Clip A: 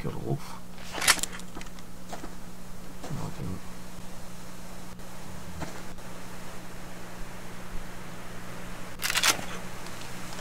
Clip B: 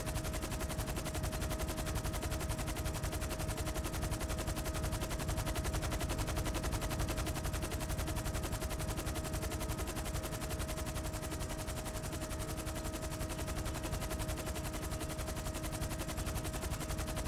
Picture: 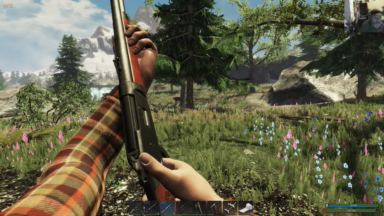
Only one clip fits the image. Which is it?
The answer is A